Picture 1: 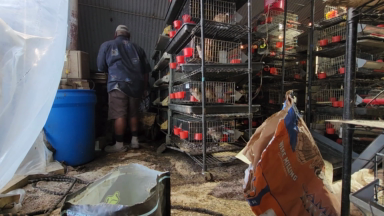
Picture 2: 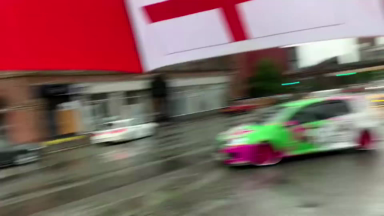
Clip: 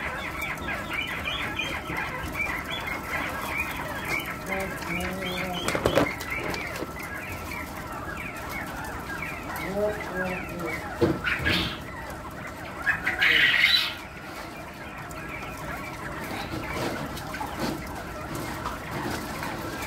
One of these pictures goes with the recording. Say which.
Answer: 1